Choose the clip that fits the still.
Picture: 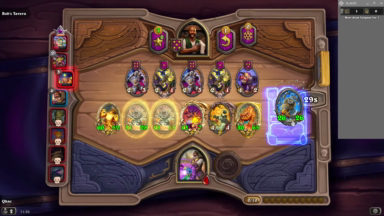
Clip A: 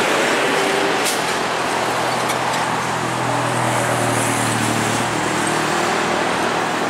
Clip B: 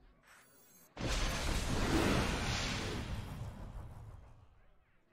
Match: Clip B